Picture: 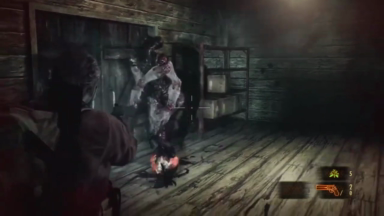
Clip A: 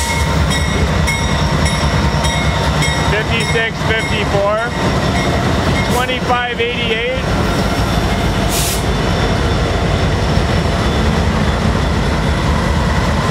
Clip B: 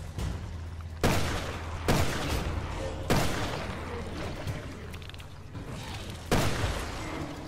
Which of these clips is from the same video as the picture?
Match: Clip B